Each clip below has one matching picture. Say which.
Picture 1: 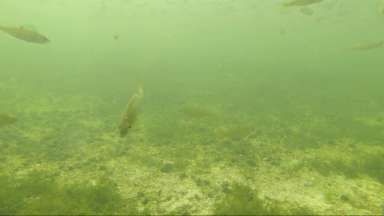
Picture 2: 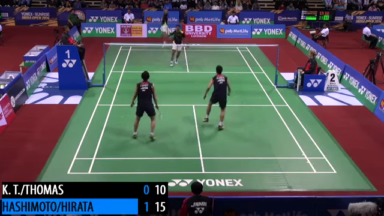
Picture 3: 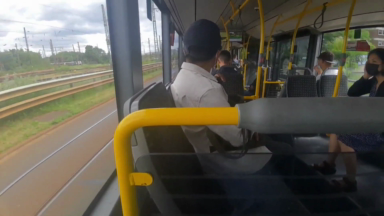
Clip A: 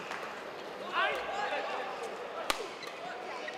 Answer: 2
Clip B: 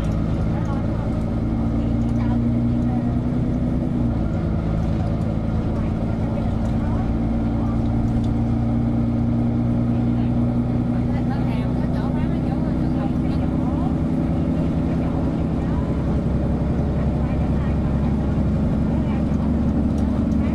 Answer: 3